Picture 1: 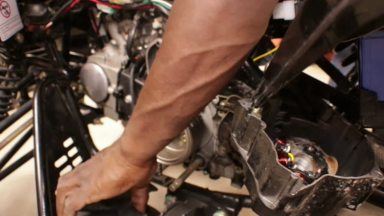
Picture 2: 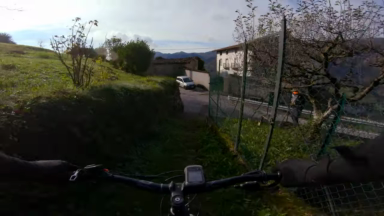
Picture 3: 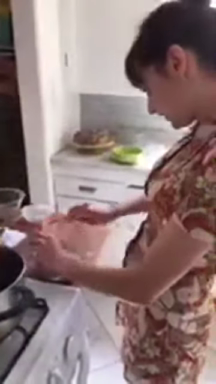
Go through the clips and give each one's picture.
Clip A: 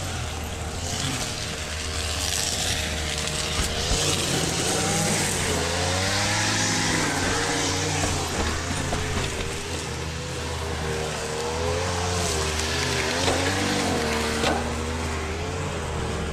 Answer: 2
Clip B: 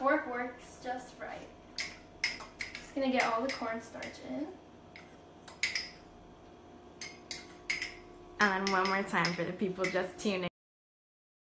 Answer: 3